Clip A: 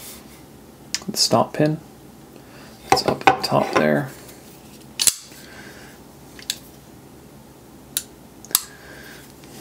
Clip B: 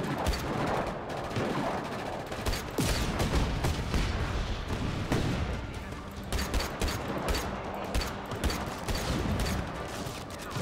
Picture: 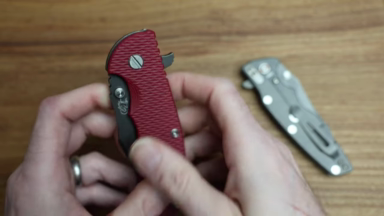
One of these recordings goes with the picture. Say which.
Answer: A